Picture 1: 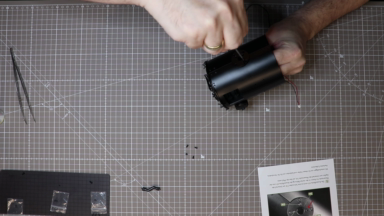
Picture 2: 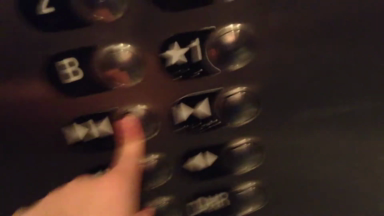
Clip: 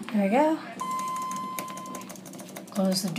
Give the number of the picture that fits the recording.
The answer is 2